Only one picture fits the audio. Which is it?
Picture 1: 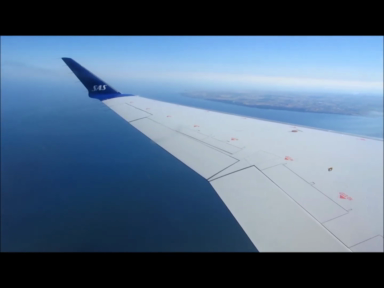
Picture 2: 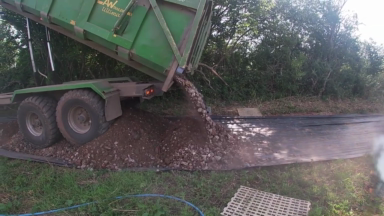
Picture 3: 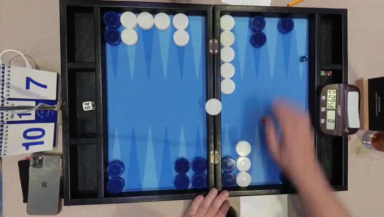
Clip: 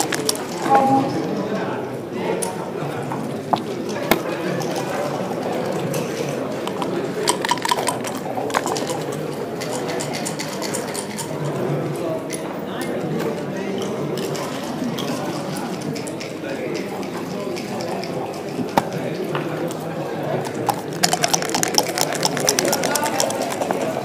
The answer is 3